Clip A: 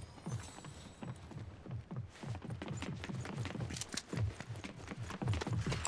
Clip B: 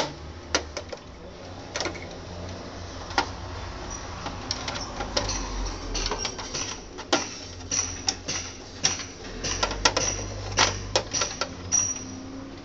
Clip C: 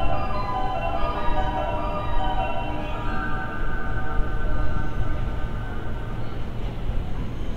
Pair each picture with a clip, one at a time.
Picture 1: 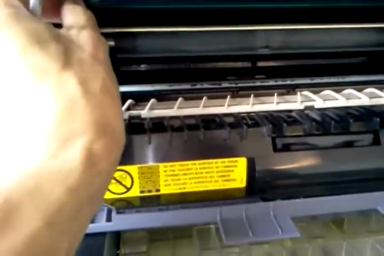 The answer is B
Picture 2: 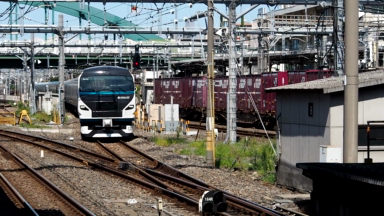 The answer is C